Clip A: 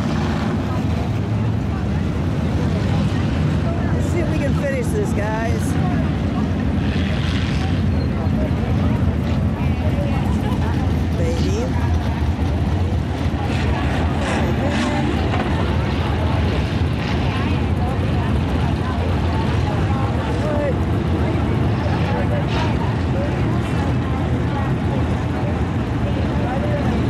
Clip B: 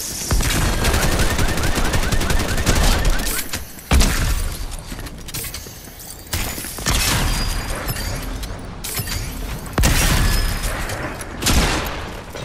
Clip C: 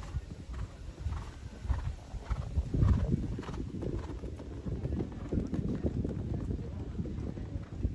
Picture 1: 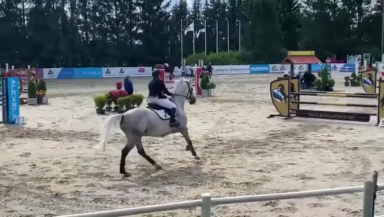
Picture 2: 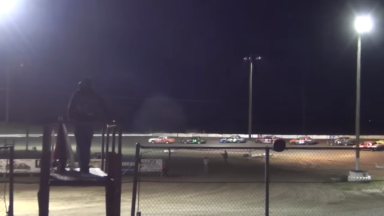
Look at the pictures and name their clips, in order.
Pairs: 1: C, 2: A